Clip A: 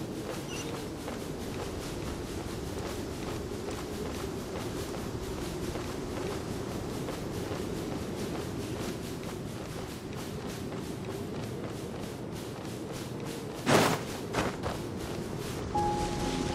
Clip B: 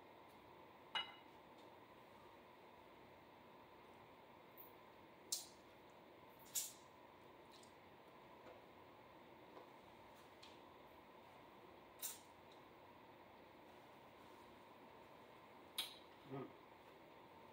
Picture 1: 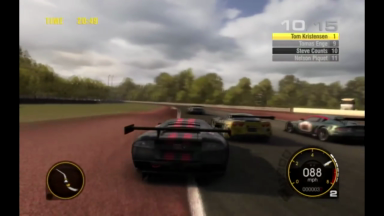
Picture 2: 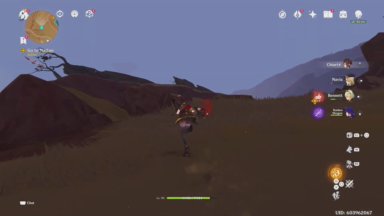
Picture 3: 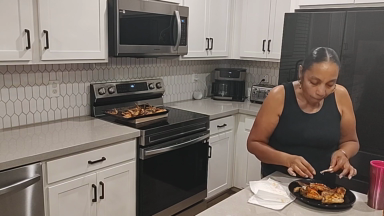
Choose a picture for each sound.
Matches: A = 2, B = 3